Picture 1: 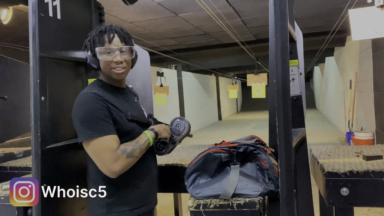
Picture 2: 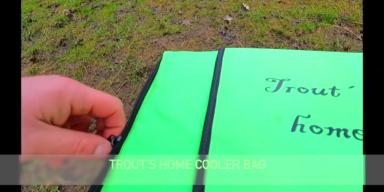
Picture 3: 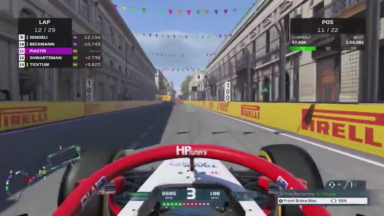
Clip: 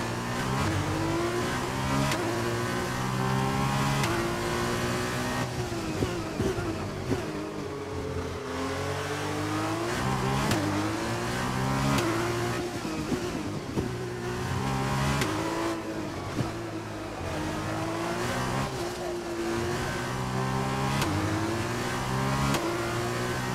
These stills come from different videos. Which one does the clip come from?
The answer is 3